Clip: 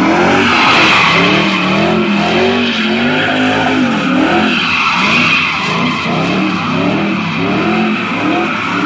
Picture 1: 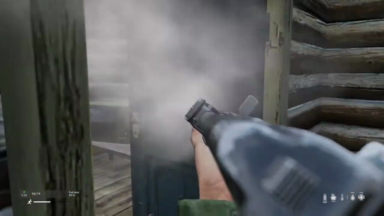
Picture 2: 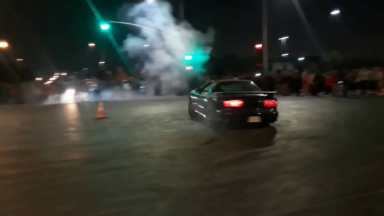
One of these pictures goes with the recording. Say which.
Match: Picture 2